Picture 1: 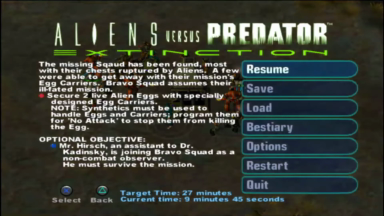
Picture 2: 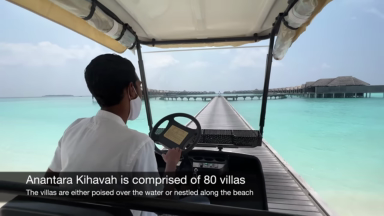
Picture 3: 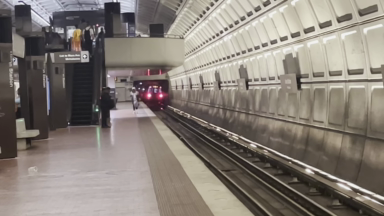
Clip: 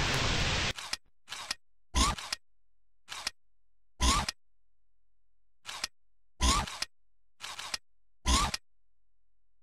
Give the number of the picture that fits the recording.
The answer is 1